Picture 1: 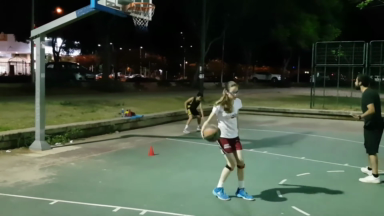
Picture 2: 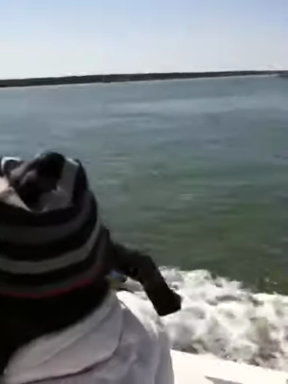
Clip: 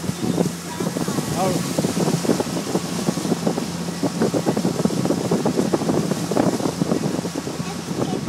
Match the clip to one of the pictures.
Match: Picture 2